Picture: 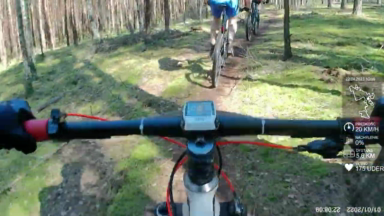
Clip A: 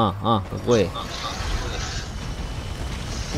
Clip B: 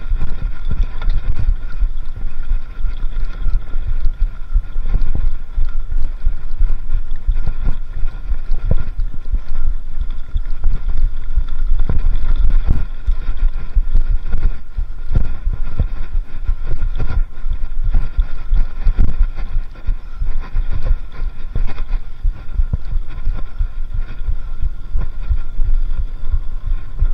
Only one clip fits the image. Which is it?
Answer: B